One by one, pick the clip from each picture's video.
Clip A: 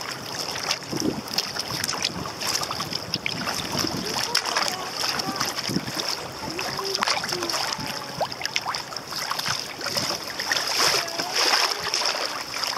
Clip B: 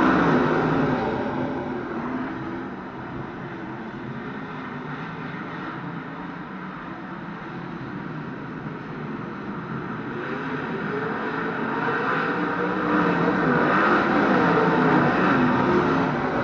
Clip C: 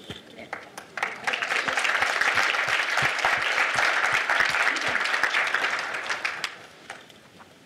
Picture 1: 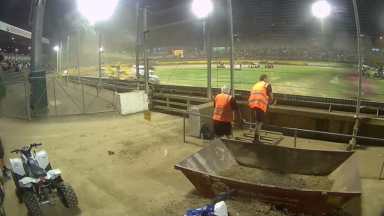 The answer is B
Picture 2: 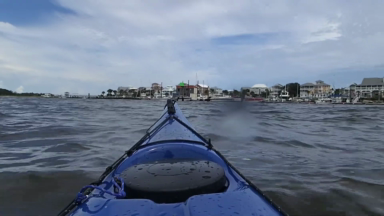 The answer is A